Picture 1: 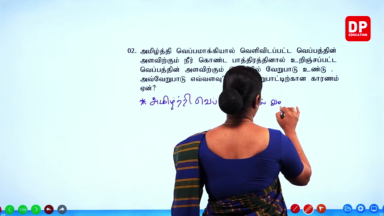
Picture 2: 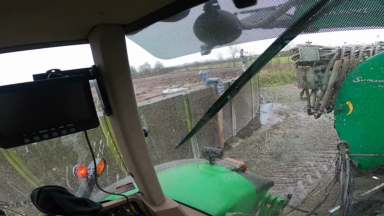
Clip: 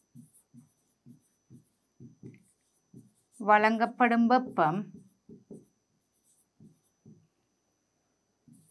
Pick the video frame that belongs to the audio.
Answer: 1